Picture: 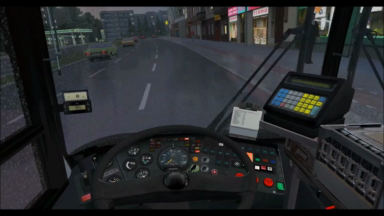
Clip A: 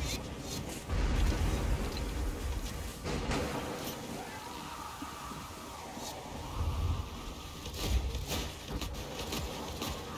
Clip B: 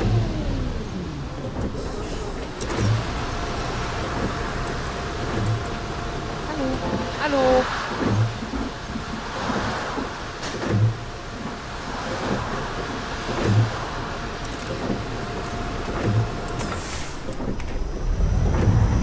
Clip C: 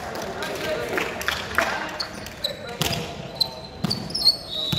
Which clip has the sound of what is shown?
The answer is B